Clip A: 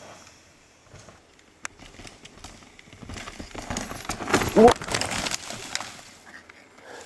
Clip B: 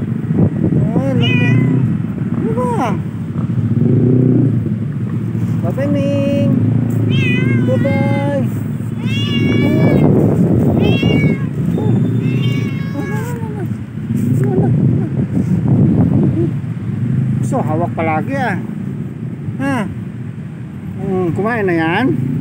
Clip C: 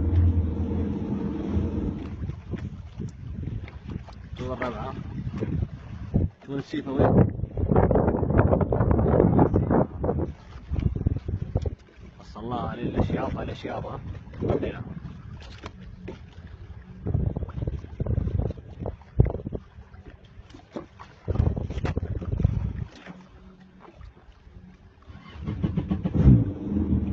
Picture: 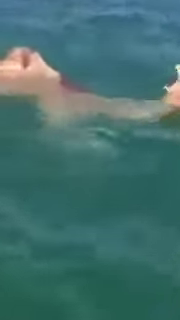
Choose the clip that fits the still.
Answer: C